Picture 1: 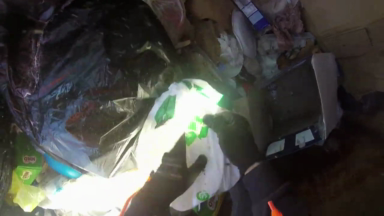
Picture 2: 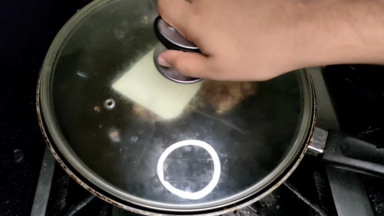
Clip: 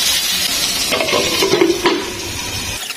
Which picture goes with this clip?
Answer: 2